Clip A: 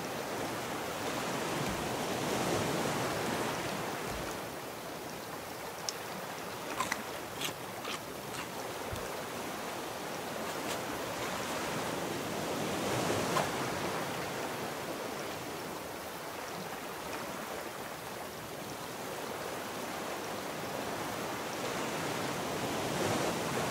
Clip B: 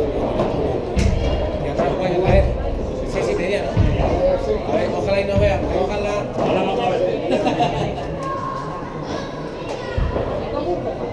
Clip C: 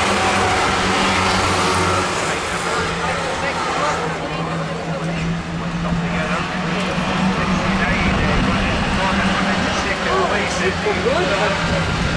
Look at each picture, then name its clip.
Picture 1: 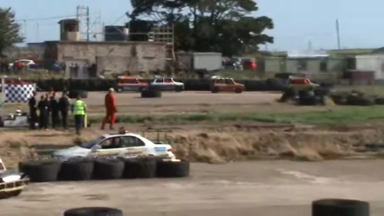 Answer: C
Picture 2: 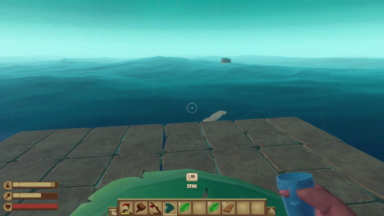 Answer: A